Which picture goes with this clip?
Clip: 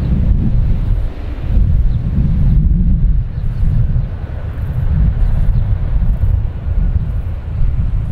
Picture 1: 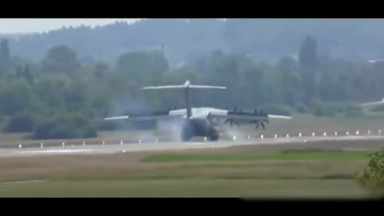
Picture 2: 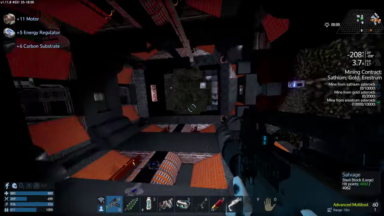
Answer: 1